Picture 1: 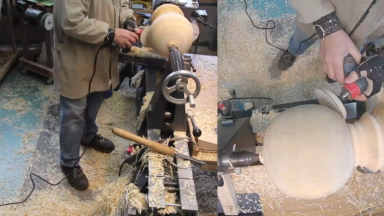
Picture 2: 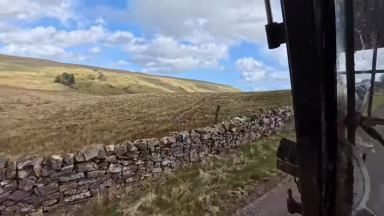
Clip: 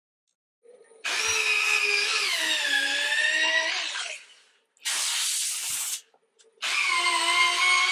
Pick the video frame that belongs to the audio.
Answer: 1